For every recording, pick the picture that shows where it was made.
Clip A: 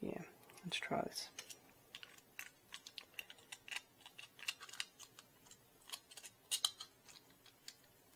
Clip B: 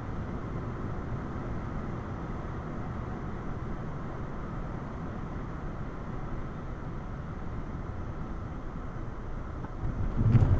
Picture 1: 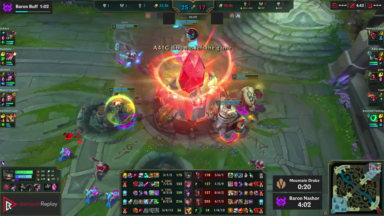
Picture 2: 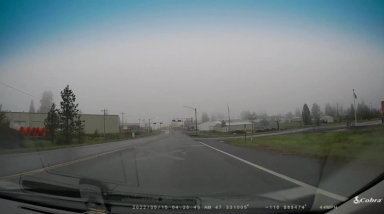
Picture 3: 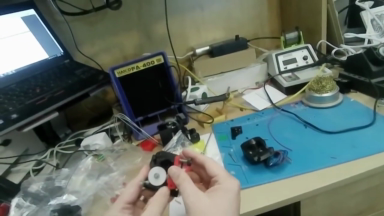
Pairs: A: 3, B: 2